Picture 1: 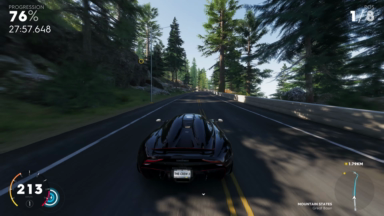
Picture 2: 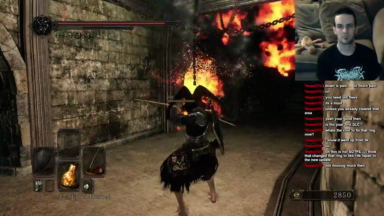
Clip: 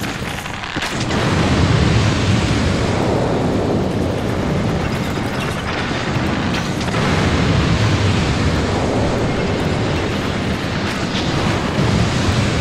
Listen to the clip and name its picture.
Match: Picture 2